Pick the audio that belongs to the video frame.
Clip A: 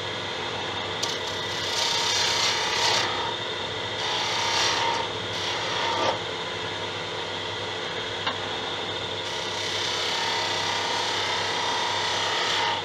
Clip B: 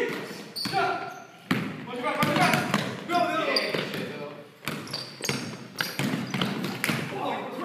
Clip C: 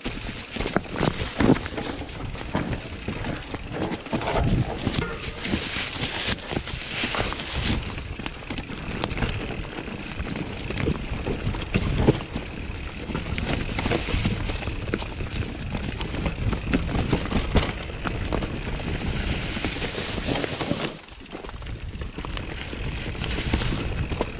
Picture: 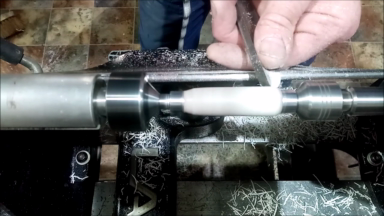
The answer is A